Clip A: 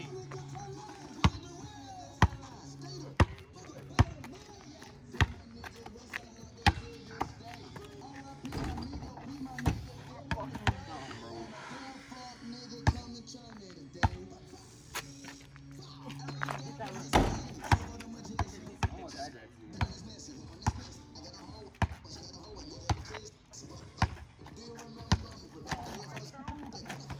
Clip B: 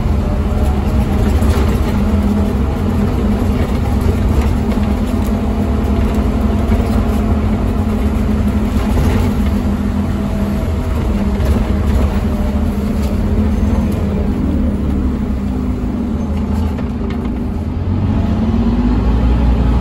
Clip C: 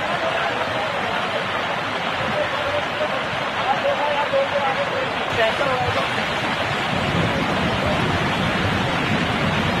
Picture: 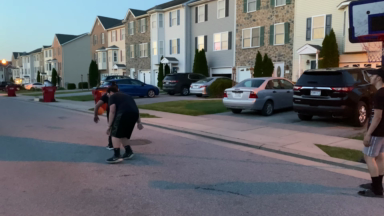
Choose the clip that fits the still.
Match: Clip A